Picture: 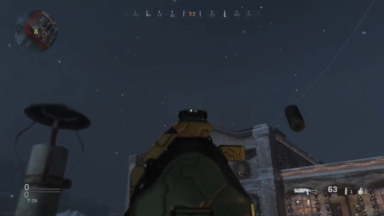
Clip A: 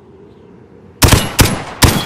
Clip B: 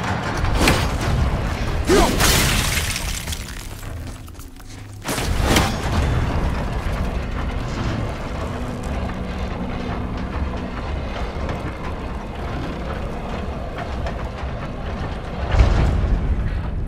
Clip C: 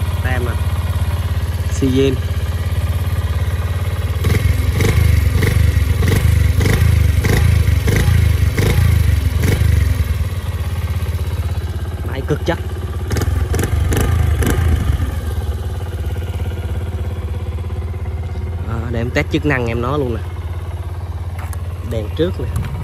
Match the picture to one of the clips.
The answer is A